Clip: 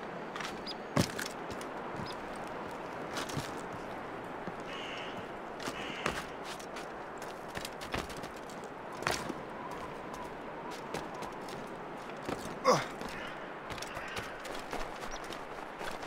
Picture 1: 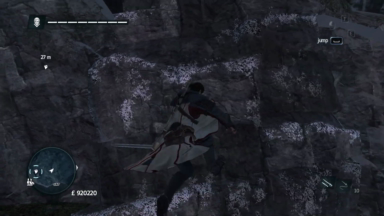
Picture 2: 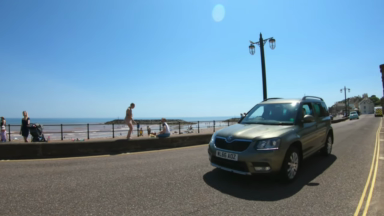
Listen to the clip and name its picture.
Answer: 1